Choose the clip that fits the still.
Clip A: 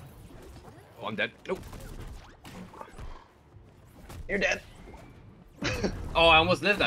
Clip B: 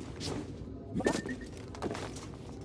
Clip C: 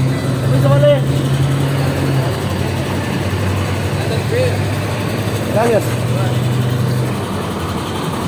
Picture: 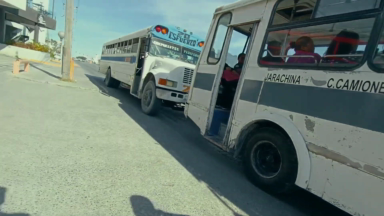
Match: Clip C